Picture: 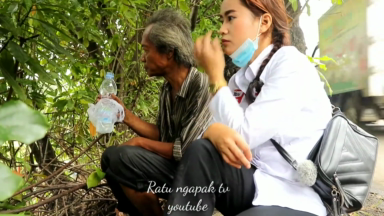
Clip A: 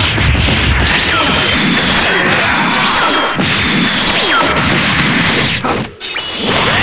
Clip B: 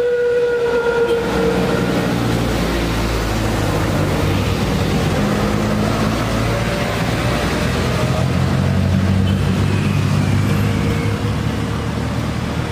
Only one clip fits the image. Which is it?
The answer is B